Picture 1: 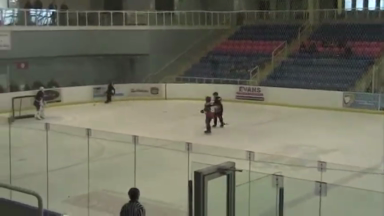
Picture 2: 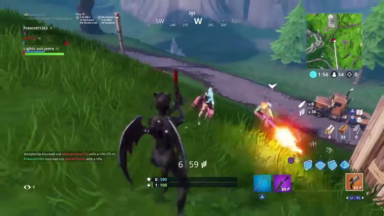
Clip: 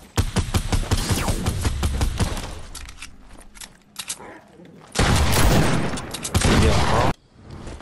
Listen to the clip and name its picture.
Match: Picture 2